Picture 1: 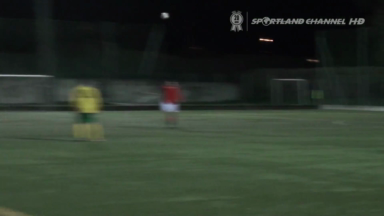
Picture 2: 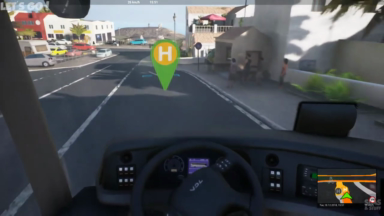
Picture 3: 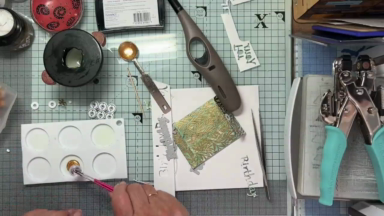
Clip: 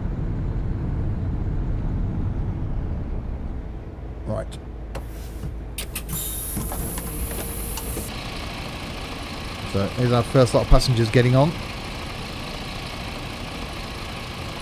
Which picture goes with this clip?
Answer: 2